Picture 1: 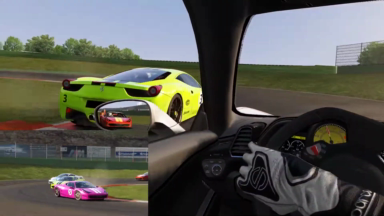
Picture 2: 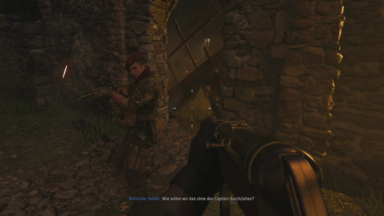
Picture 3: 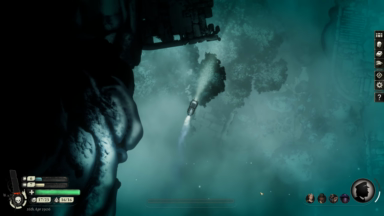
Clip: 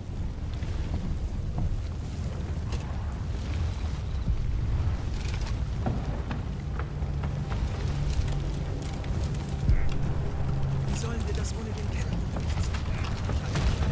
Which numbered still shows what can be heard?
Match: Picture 2